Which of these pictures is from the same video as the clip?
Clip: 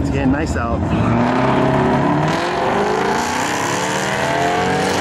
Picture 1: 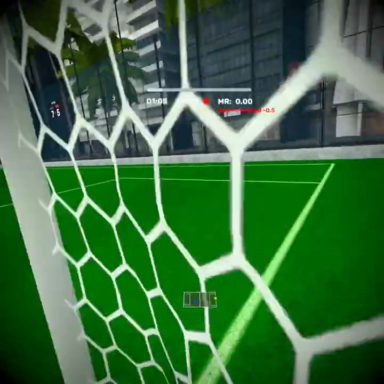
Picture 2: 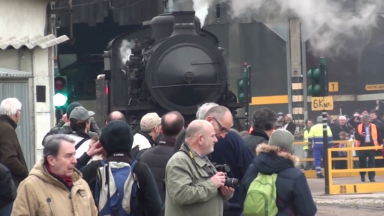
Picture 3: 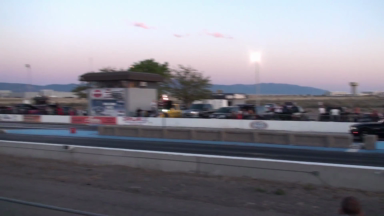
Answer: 3